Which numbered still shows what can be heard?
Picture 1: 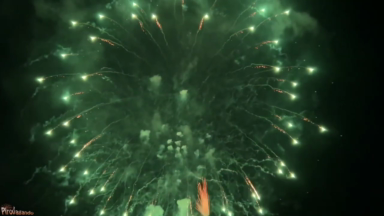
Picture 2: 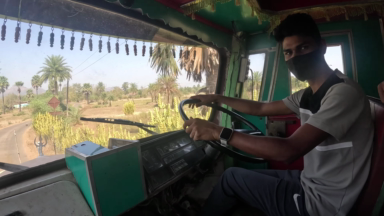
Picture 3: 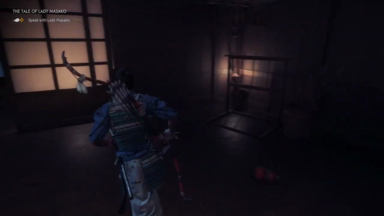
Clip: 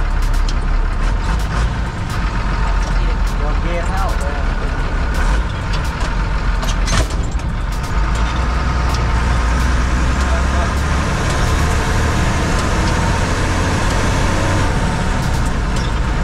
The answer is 2